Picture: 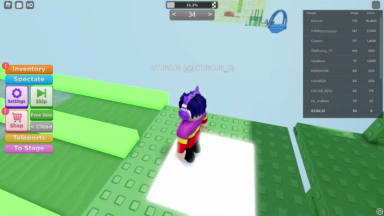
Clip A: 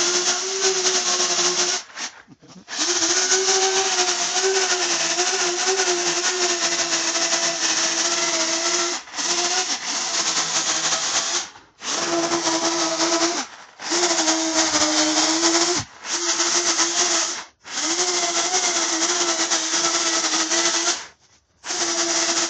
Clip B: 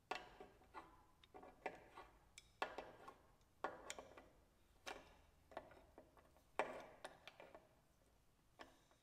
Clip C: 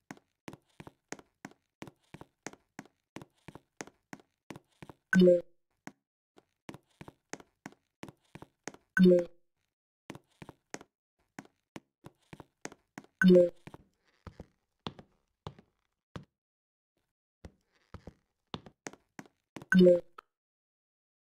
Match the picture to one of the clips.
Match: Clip C